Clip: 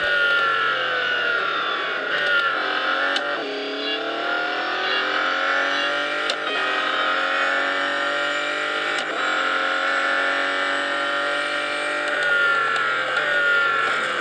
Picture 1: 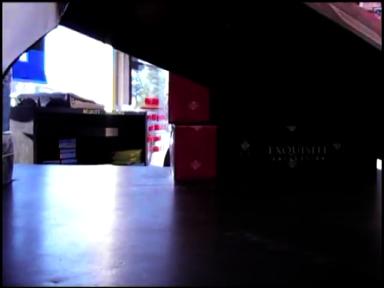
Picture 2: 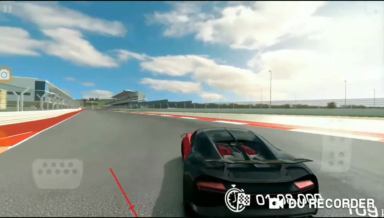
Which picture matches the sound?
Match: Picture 2